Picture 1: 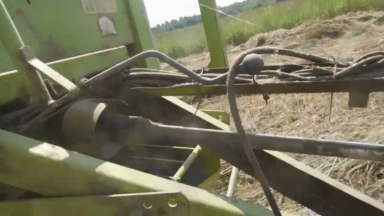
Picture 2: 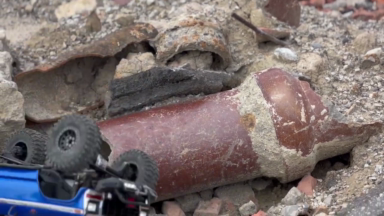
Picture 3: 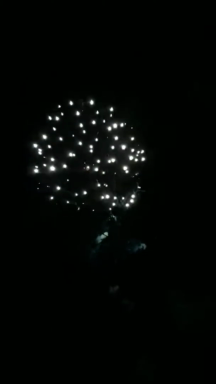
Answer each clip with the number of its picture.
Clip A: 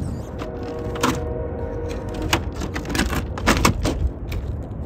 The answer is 2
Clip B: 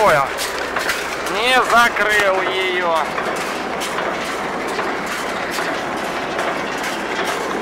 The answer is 1